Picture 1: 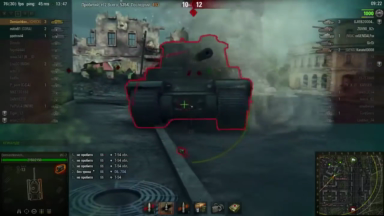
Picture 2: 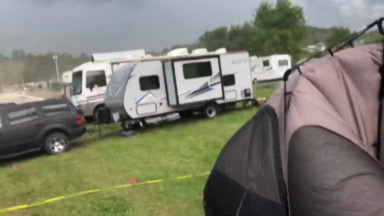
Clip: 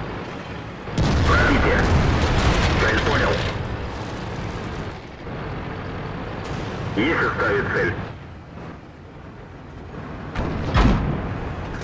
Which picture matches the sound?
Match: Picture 1